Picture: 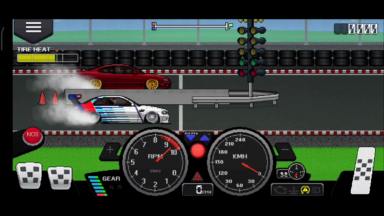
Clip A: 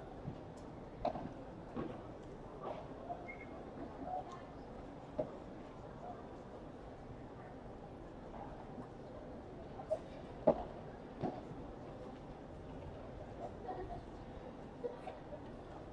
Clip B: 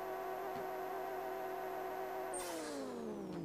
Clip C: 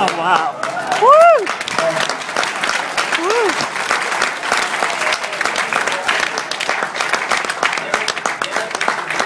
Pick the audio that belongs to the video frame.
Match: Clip B